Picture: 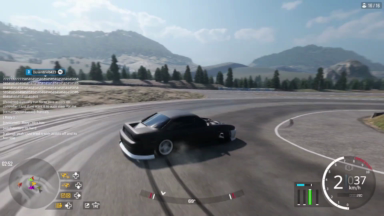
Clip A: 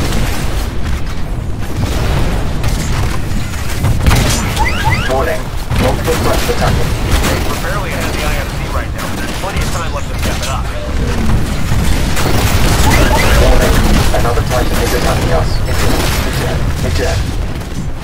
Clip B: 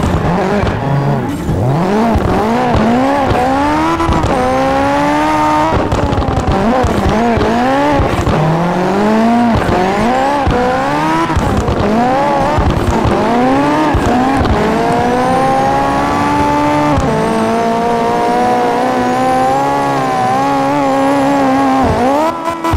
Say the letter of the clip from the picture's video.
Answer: B